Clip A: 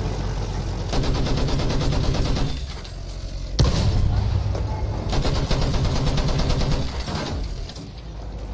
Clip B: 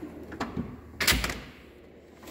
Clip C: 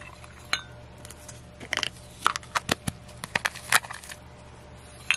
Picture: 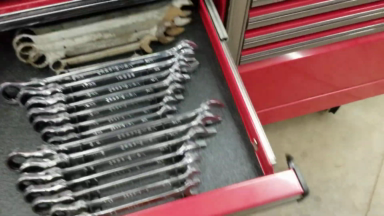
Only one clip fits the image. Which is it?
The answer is B